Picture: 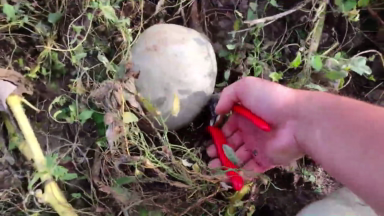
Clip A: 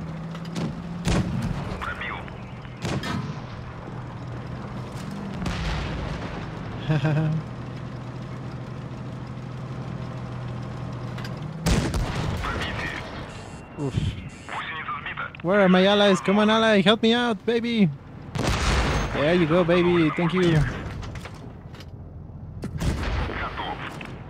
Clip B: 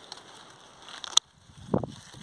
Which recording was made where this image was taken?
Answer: B